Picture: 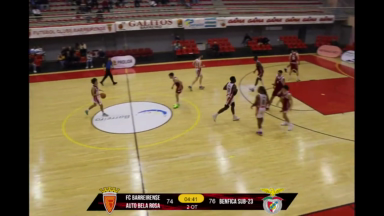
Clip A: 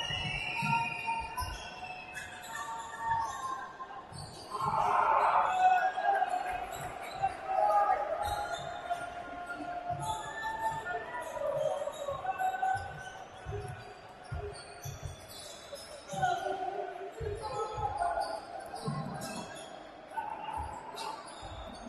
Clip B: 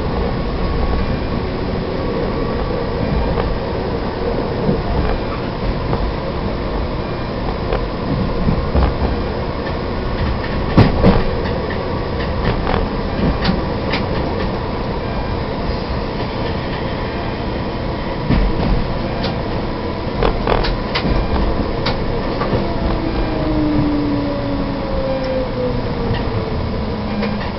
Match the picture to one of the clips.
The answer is A